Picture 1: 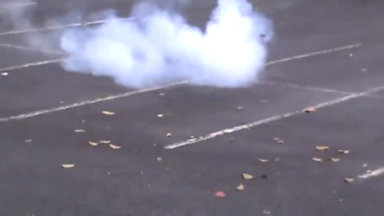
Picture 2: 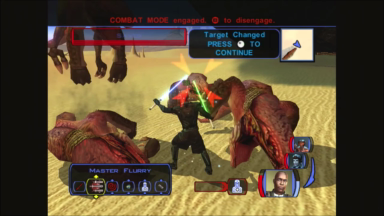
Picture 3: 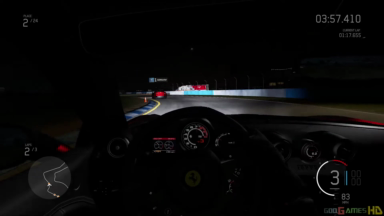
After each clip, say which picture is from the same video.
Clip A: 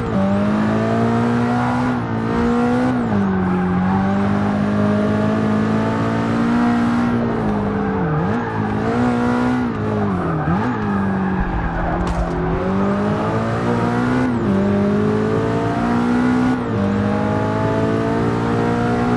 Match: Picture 3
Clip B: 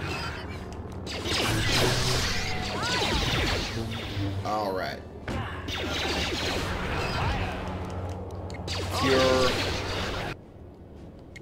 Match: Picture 2